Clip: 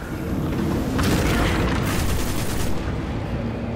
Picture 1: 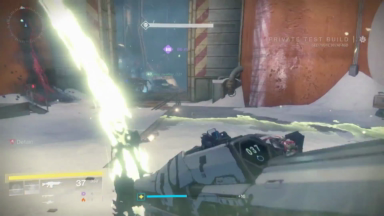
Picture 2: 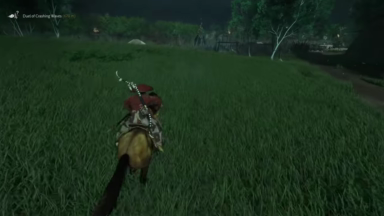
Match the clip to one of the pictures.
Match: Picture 1